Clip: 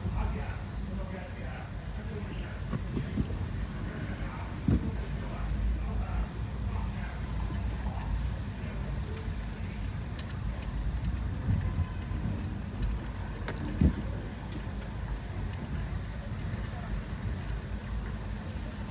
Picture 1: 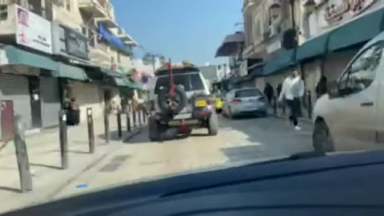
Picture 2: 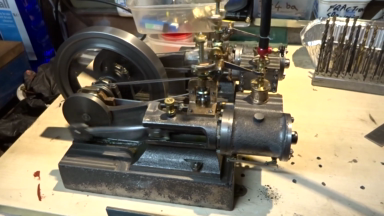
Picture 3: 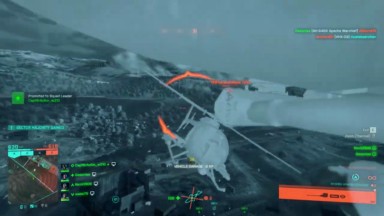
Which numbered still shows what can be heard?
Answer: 1